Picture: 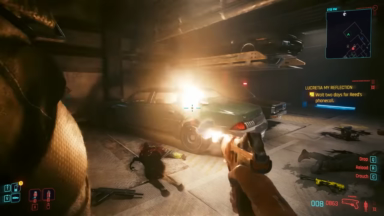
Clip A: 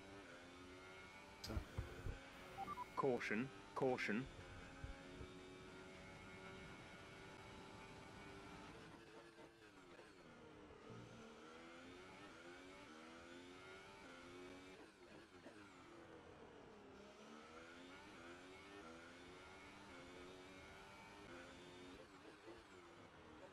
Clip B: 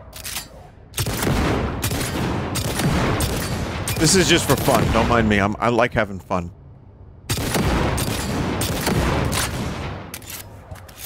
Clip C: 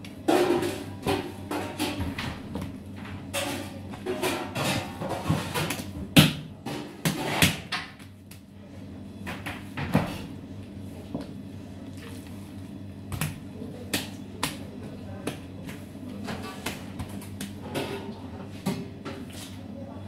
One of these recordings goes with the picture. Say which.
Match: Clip B